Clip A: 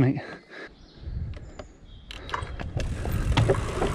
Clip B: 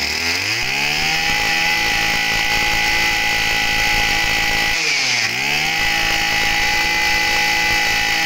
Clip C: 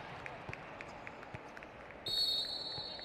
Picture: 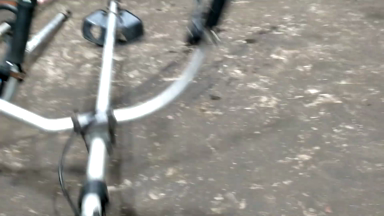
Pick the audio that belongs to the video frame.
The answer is B